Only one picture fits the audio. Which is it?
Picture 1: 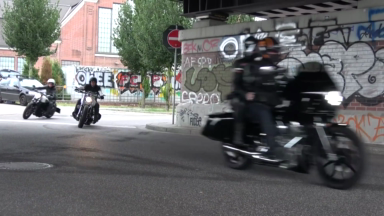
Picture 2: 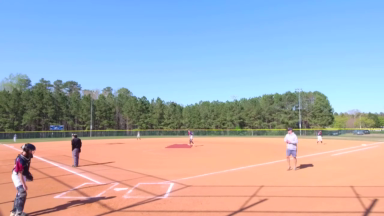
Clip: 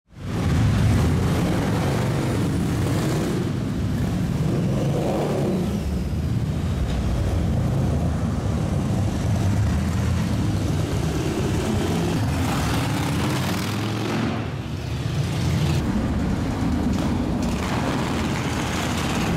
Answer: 1